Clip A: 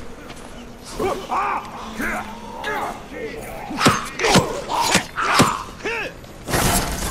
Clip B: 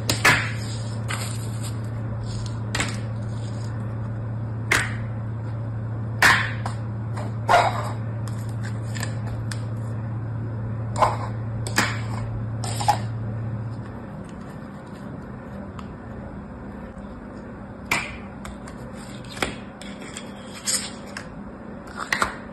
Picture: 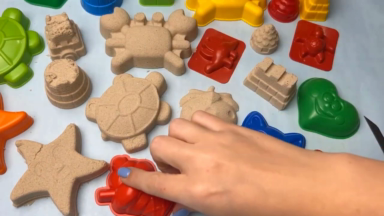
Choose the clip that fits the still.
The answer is B